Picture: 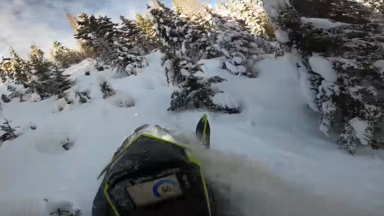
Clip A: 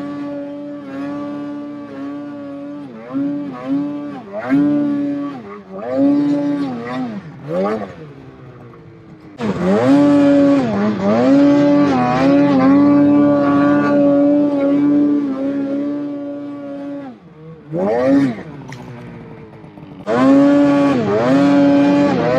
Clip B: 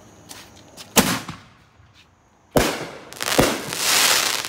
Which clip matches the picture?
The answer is A